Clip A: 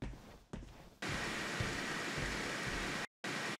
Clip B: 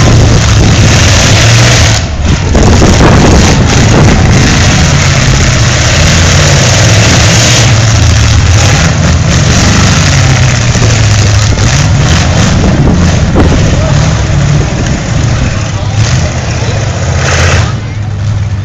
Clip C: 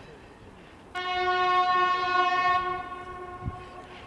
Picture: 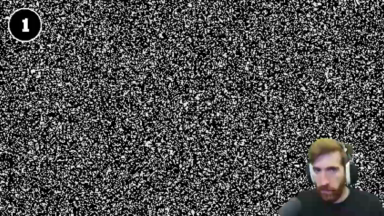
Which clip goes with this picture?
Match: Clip A